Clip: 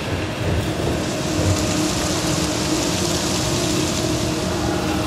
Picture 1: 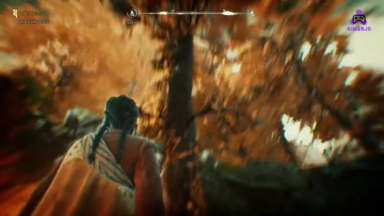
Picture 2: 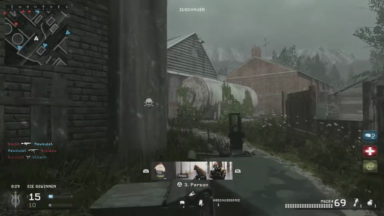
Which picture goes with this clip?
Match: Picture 1